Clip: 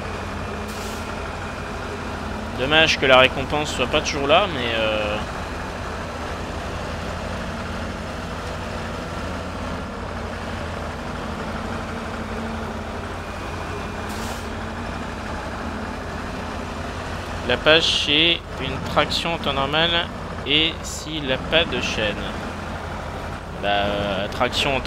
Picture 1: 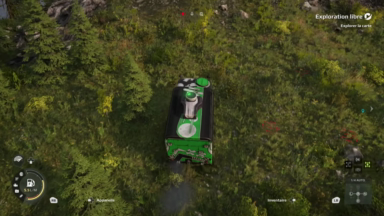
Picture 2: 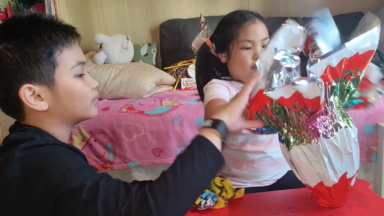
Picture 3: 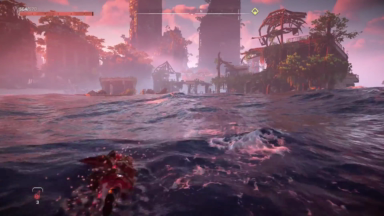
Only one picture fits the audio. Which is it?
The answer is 1